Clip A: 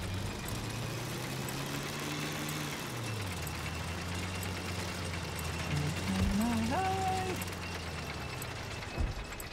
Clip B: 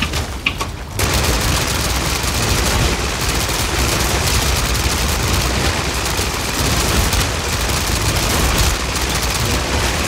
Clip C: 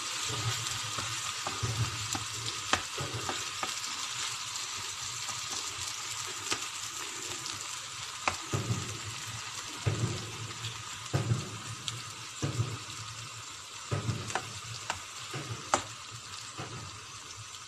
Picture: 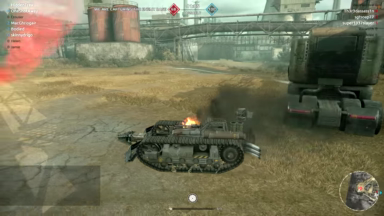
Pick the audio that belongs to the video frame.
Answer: A